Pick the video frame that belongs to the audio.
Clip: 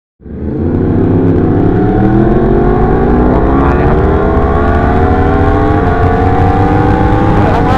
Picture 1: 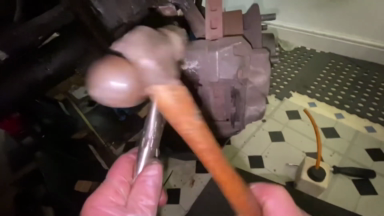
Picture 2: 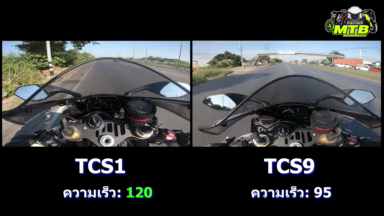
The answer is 2